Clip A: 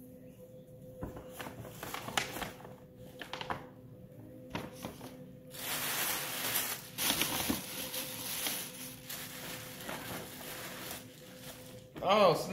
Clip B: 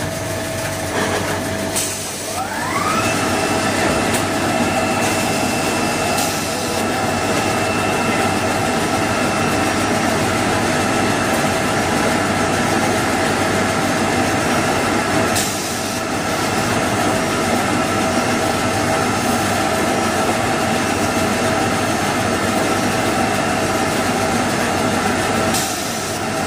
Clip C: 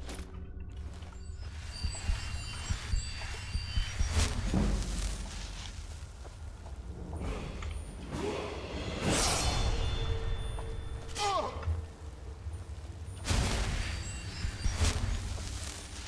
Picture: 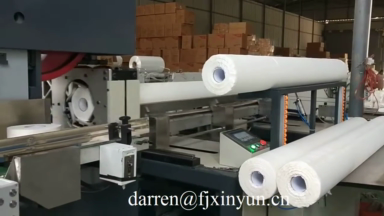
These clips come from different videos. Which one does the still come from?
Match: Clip B